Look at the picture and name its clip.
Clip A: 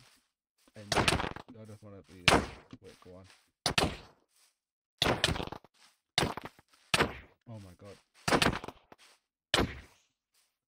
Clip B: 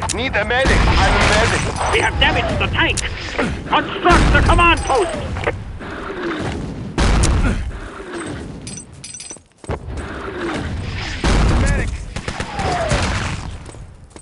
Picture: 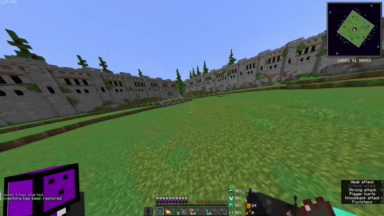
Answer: A